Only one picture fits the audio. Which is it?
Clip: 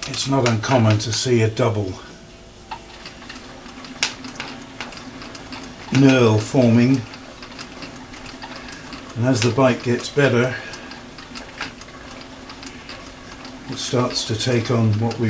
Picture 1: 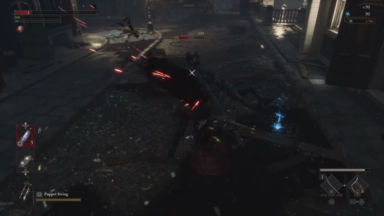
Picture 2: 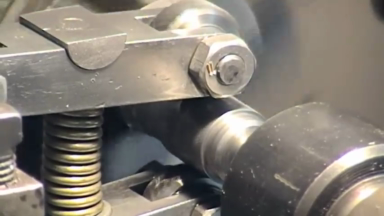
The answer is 2